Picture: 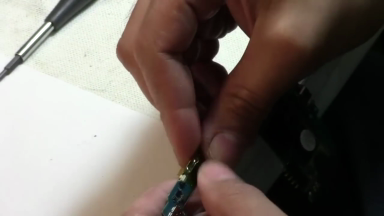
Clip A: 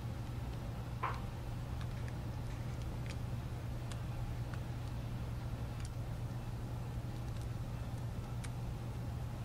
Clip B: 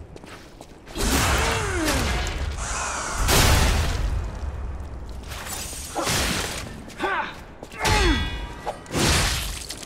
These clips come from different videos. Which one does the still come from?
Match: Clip A